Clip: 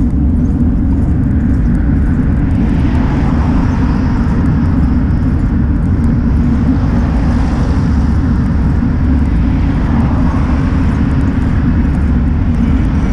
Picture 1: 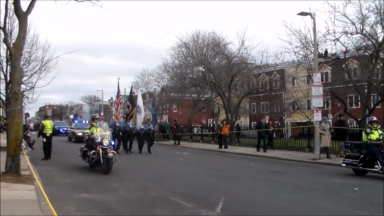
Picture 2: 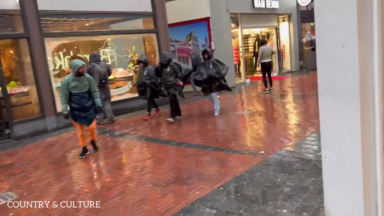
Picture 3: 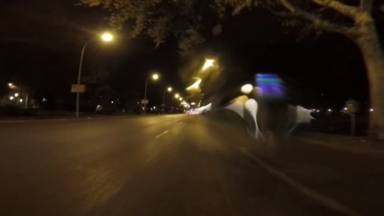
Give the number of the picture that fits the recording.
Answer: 3